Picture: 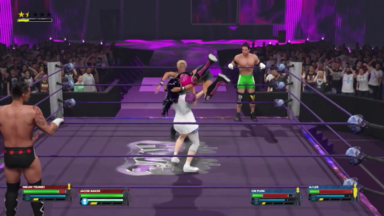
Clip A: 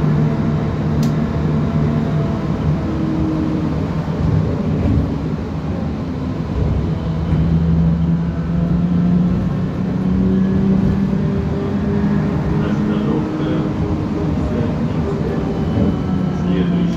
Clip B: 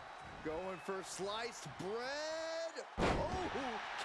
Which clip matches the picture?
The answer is B